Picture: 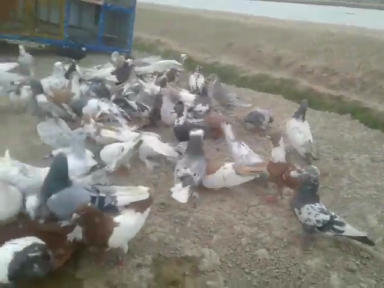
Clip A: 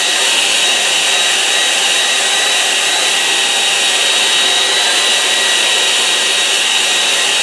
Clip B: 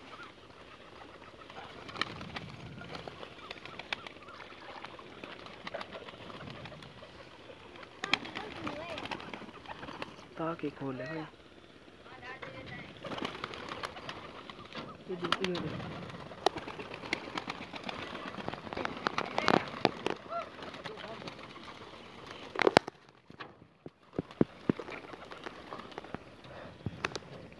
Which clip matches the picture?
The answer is B